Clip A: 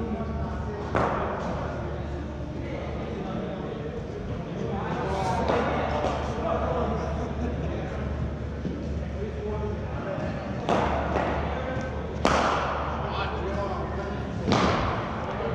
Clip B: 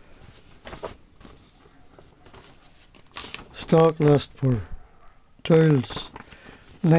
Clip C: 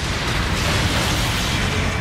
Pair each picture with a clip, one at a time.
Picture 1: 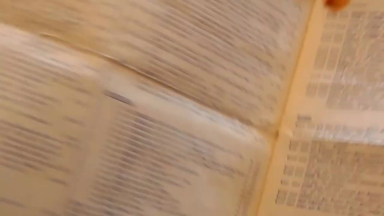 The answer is B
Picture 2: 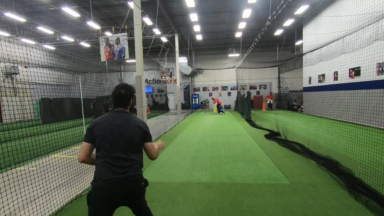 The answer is A